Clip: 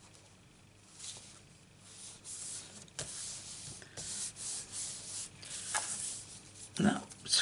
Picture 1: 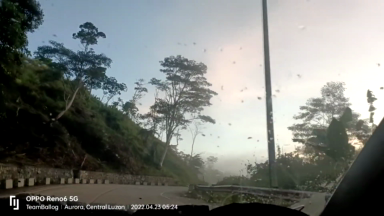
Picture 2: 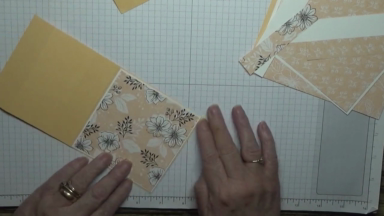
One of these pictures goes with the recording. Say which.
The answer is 2